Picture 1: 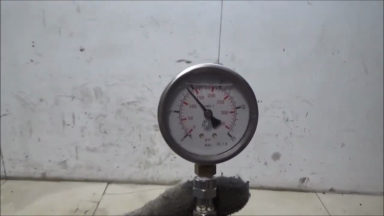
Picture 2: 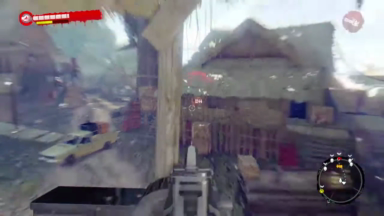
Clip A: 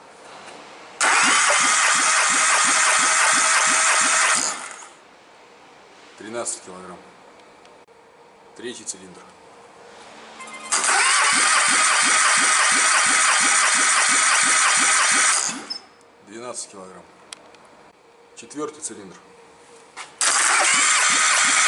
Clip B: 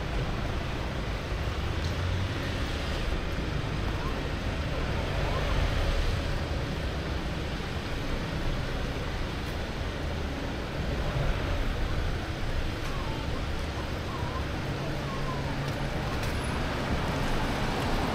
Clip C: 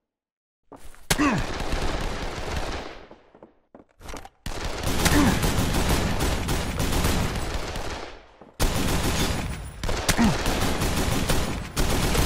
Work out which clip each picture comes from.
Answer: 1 A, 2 C